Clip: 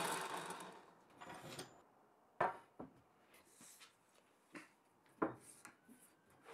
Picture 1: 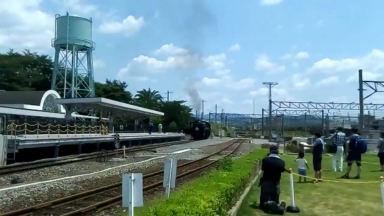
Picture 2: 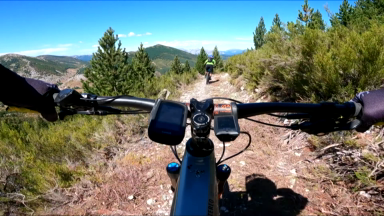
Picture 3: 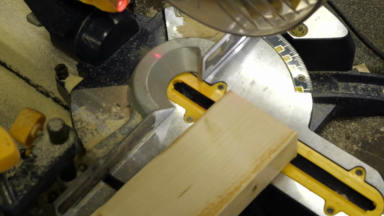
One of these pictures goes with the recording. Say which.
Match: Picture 3